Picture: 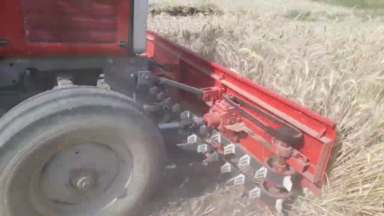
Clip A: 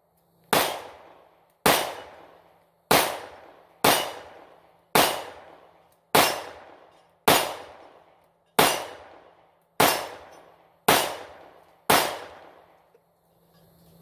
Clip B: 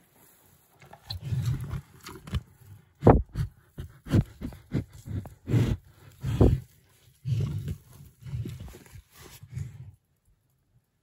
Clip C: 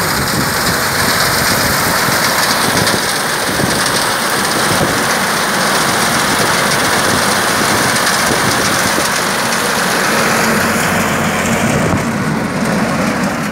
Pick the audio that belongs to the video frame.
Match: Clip C